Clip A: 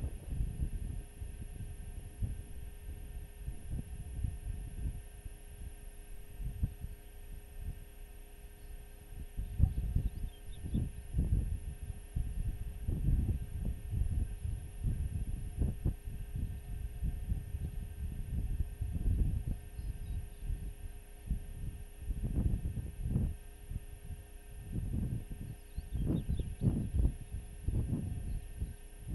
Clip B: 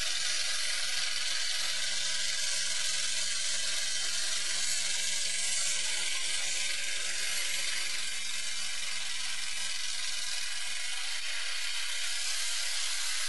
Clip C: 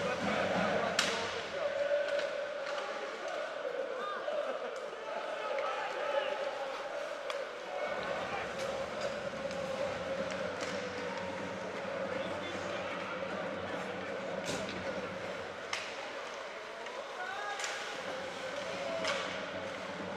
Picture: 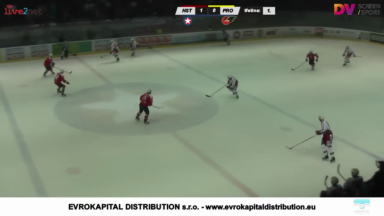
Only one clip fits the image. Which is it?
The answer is C